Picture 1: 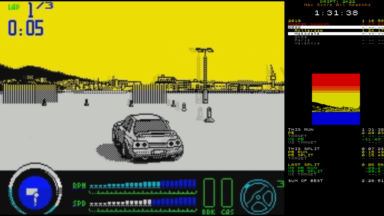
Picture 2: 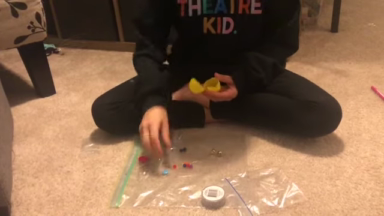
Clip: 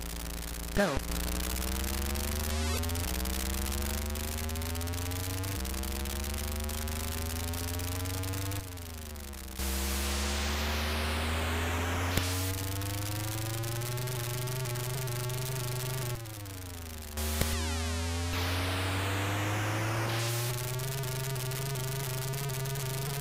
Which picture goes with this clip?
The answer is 1